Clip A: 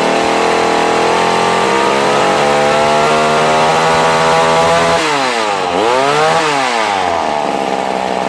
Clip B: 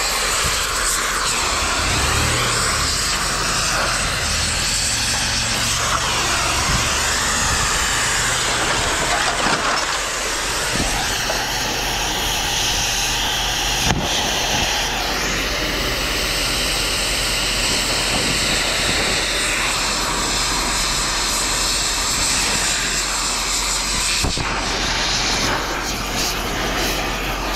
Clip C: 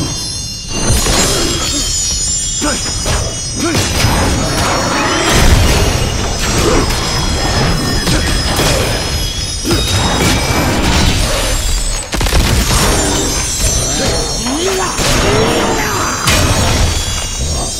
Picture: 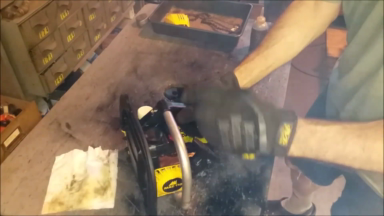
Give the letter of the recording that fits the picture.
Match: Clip A